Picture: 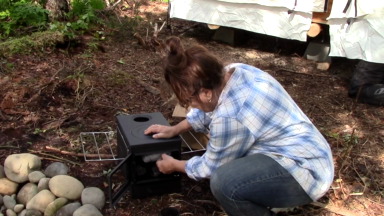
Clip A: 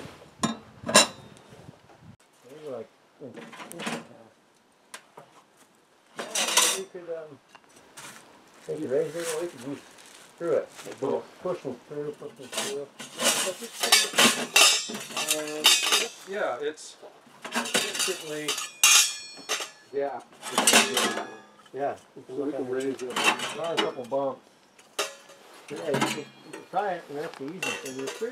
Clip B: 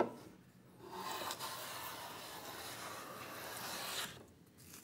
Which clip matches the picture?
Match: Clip A